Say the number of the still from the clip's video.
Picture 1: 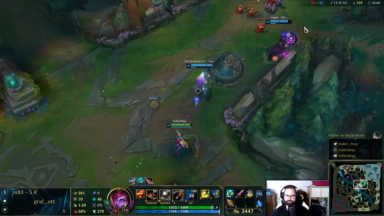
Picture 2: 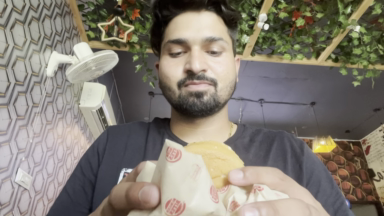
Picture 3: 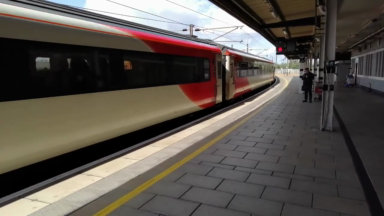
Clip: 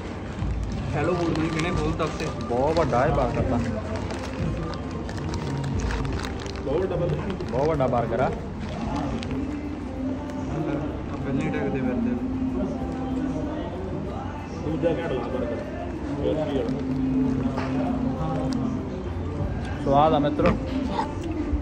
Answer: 2